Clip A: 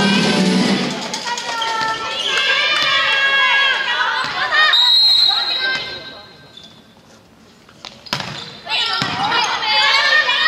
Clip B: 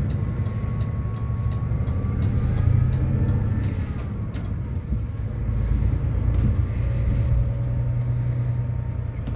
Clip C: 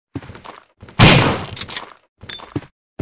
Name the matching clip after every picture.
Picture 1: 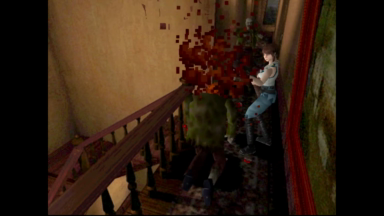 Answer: C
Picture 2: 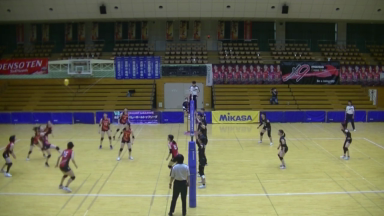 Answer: A